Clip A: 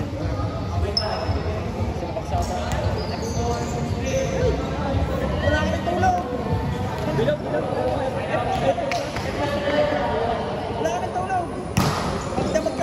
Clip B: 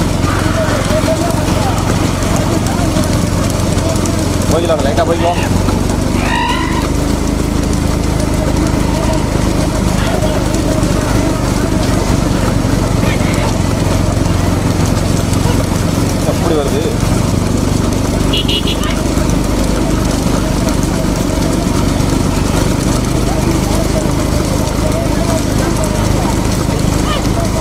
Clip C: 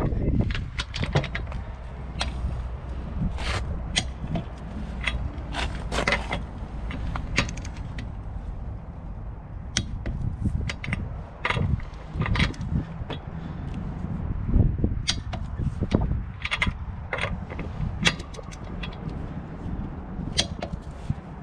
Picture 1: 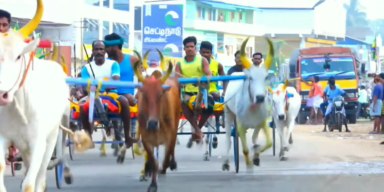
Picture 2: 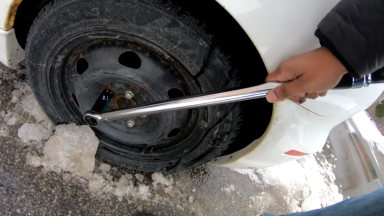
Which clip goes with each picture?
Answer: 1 B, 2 C